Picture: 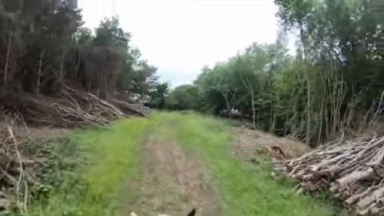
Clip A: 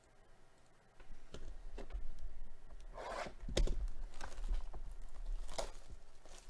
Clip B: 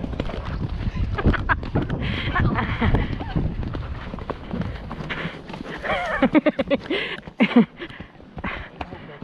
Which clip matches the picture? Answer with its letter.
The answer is B